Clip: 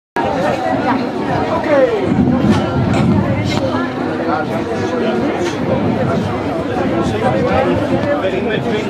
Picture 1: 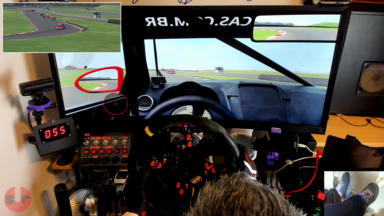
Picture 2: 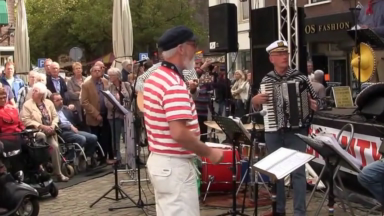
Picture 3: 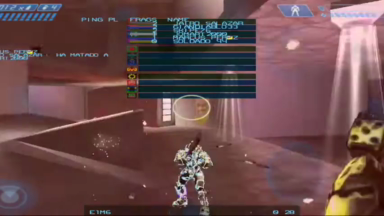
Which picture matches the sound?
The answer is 2